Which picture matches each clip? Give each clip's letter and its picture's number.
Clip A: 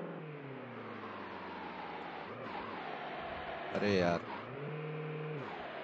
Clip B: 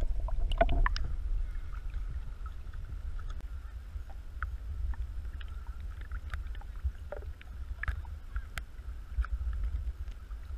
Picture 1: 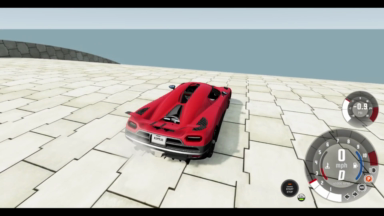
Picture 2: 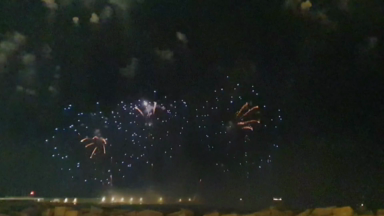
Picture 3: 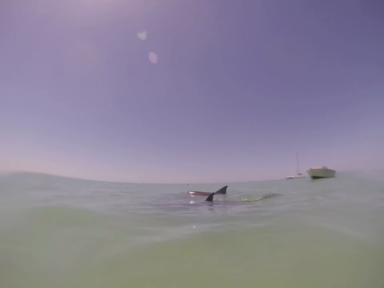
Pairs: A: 1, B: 3